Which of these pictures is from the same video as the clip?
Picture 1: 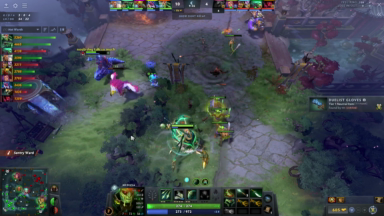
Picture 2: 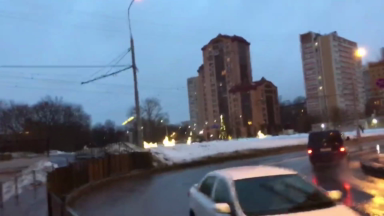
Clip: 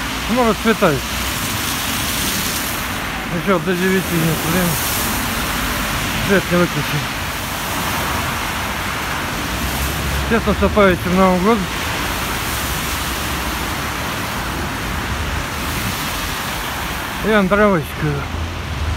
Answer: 2